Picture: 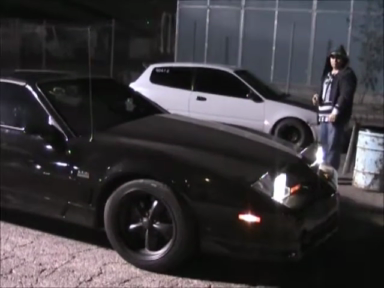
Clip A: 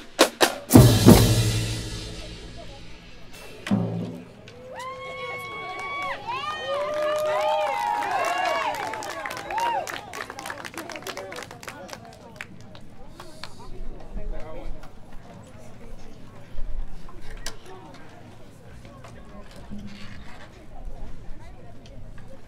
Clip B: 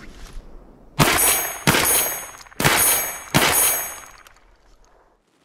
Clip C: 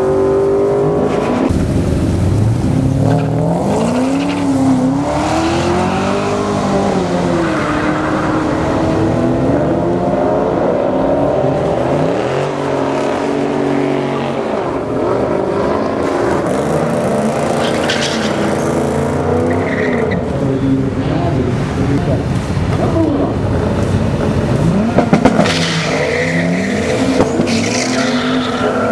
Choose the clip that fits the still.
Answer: C